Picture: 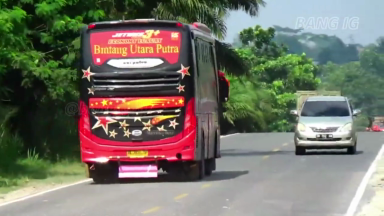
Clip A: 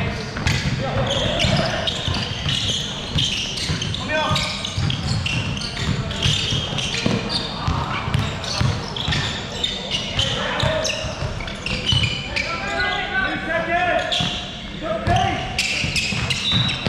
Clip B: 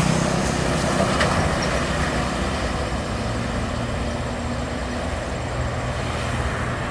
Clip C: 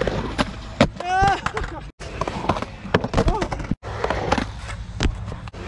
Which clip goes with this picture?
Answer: B